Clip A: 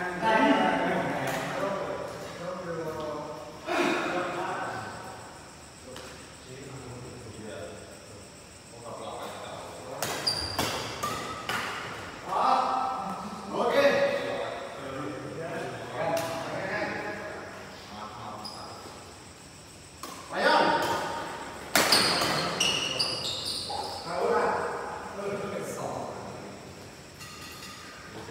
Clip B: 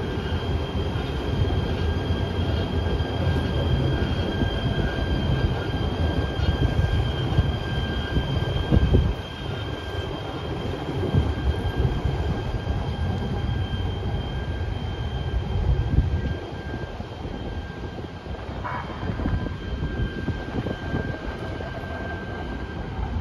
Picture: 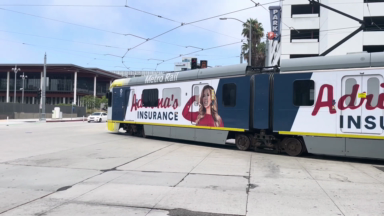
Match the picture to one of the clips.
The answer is B